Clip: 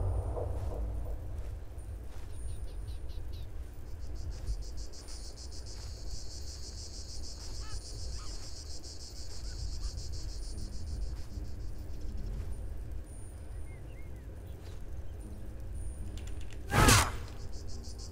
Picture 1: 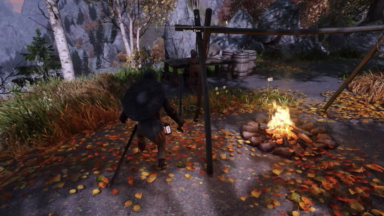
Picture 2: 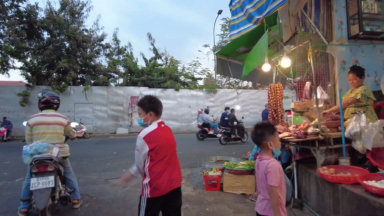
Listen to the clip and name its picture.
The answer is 1